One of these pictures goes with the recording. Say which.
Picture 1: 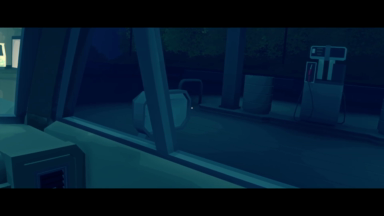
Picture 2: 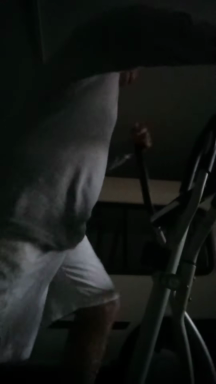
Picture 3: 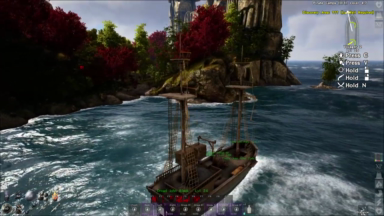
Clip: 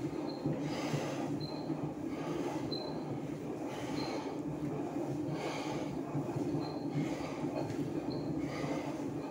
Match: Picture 2